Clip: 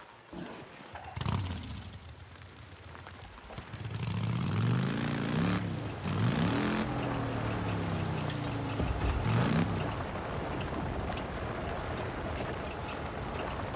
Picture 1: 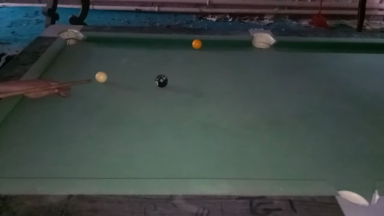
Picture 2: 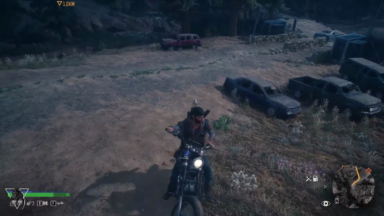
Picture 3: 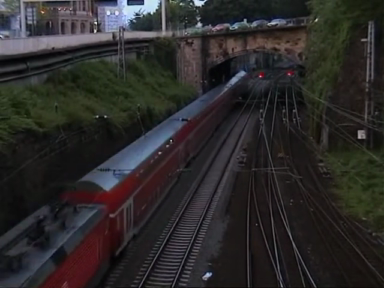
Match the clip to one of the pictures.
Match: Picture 2